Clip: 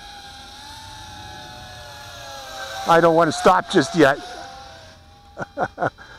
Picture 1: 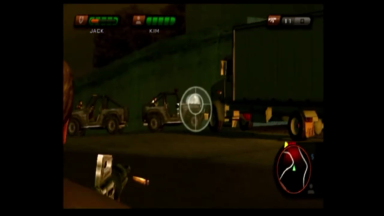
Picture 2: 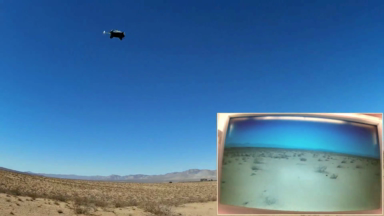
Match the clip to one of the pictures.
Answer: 2